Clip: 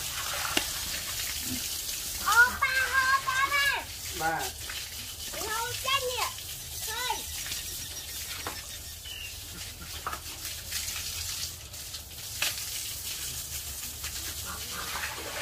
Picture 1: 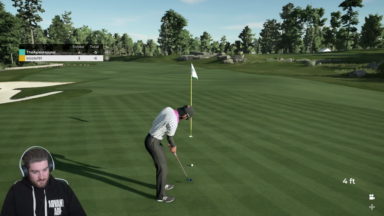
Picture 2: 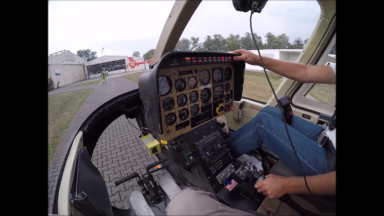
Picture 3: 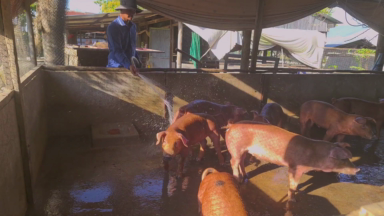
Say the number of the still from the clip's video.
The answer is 3